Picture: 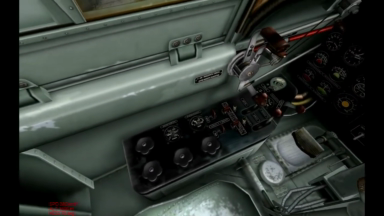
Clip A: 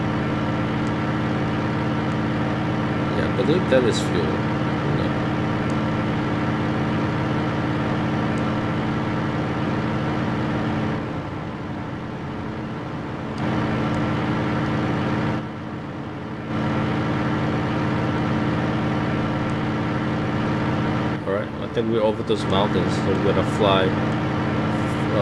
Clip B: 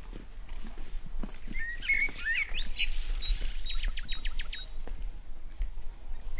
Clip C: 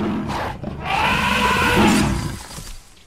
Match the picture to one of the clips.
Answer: A